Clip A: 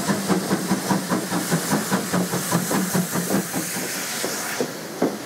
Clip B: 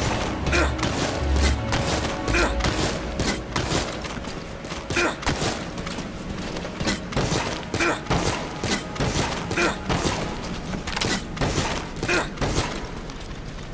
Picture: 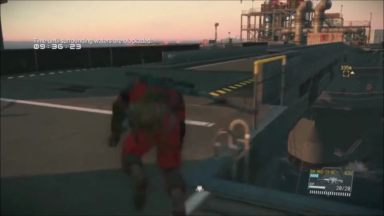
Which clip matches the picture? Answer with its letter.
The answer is B